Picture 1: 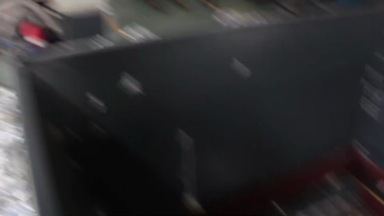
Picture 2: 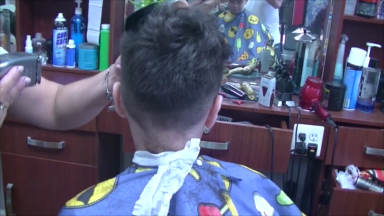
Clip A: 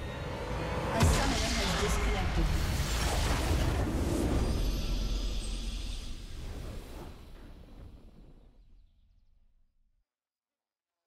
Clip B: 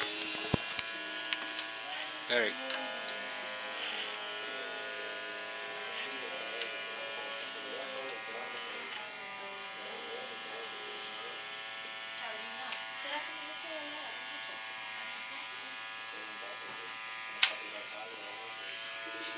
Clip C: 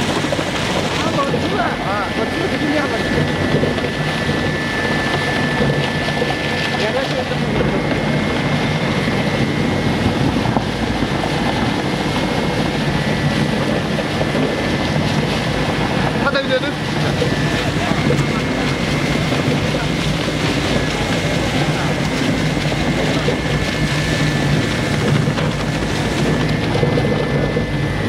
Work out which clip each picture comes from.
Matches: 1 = C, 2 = B